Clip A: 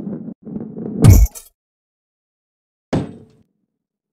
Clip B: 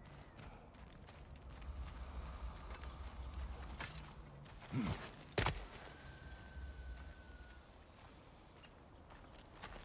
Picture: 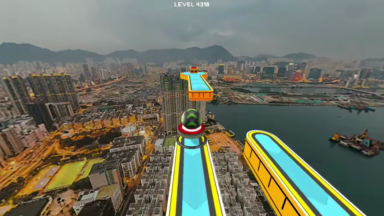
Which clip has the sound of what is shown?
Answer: A